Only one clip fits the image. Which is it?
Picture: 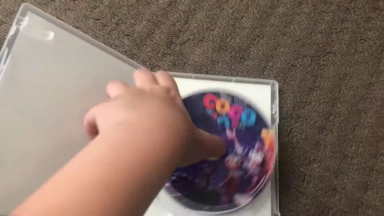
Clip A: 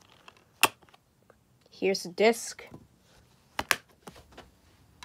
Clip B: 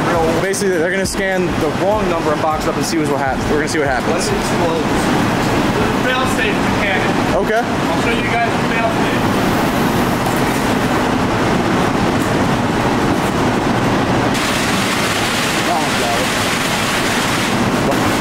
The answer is A